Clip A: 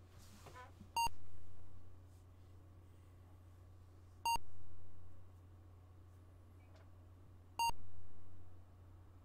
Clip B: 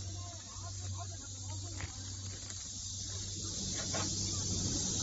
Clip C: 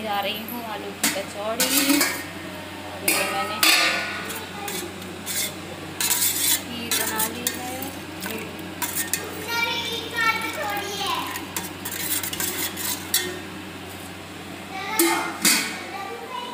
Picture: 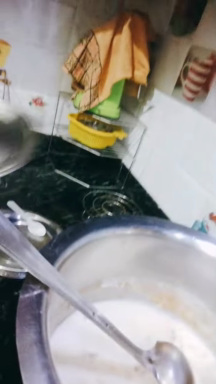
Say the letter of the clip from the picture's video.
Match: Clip C